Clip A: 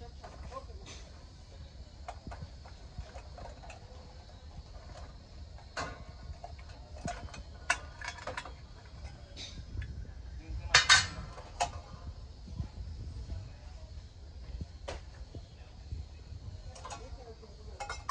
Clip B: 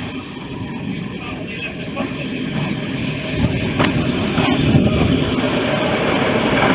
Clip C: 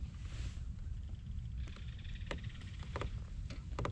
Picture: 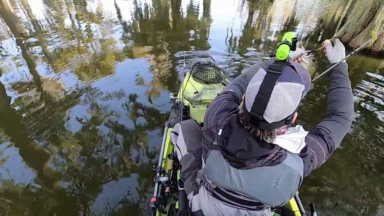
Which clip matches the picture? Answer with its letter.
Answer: C